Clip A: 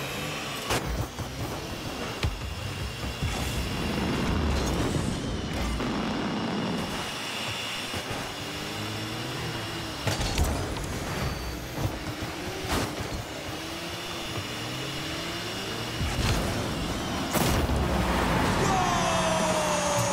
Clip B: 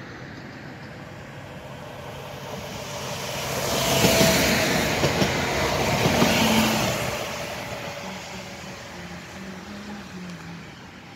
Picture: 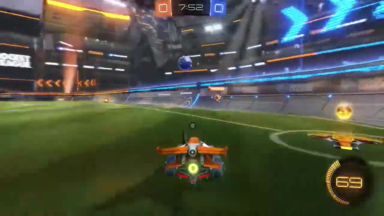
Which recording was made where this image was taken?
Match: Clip A